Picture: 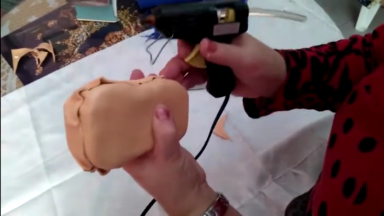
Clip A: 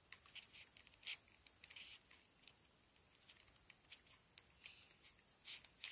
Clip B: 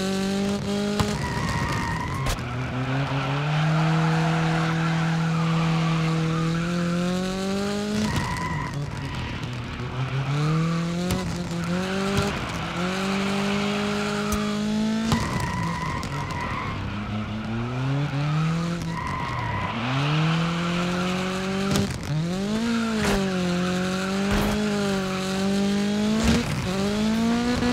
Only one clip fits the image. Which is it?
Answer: A